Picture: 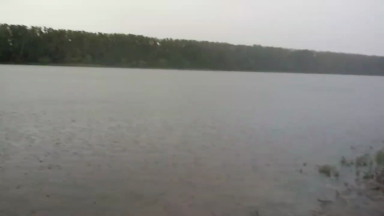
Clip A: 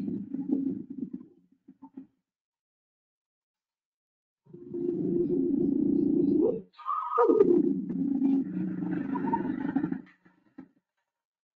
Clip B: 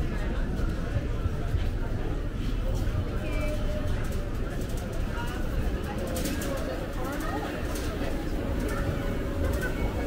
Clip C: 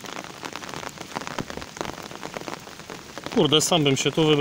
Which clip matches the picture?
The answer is C